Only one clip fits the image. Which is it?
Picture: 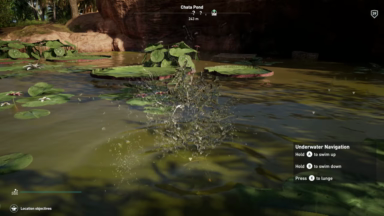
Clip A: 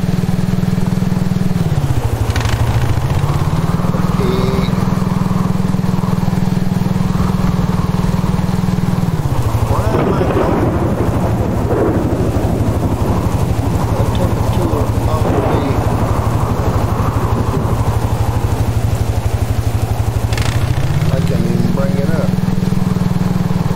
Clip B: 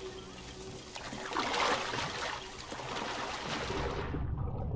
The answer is B